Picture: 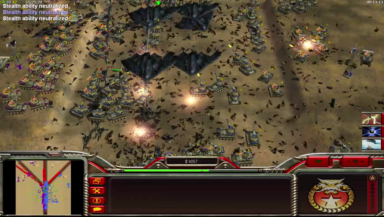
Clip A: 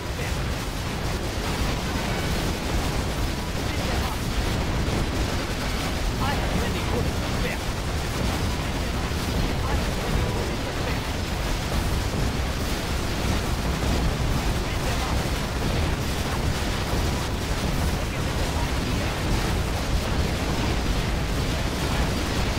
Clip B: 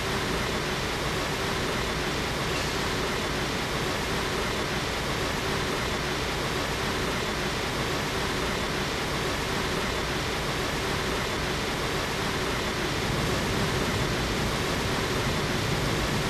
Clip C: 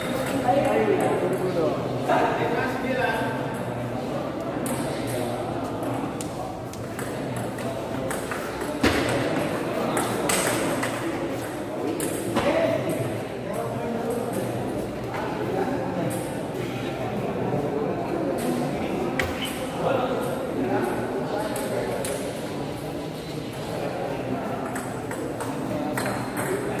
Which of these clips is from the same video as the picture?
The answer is A